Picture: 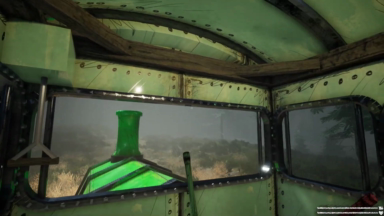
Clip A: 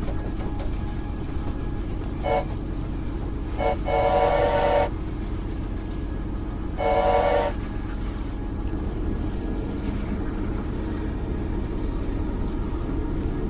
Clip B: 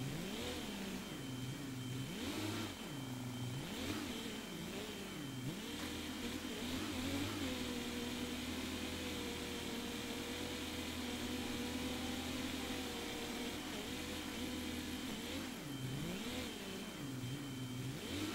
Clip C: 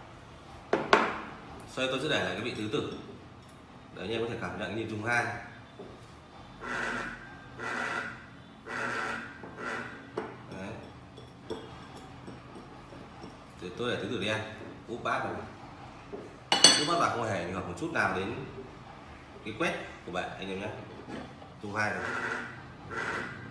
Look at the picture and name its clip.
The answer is A